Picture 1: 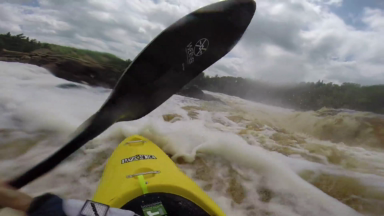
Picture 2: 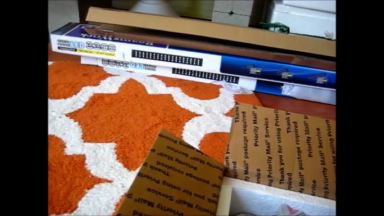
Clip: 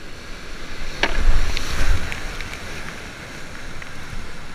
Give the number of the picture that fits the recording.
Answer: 1